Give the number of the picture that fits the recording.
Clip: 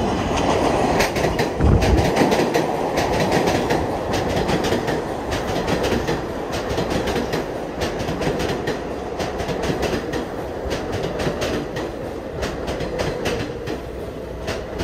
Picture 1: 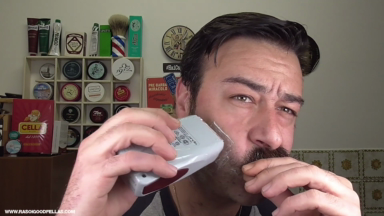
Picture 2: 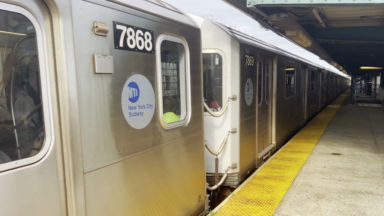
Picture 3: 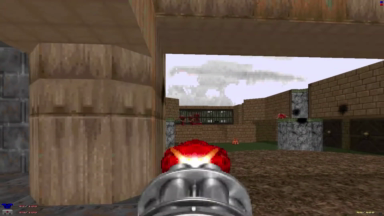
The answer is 2